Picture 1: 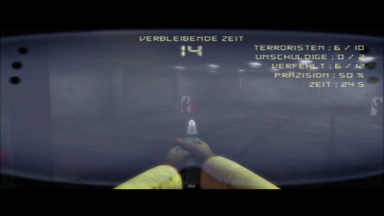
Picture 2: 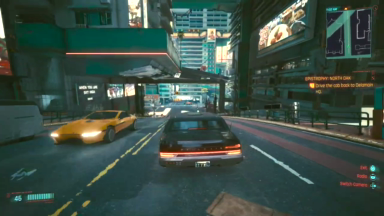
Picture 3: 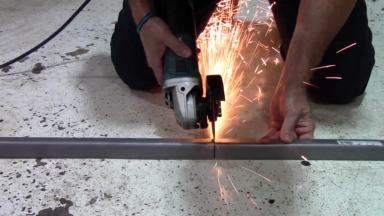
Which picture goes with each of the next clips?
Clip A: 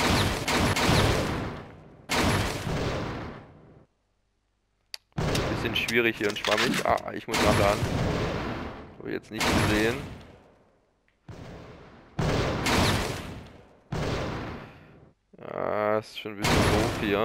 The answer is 1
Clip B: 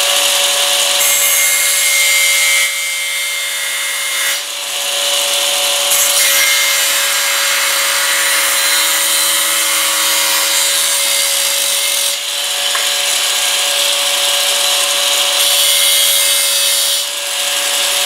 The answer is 3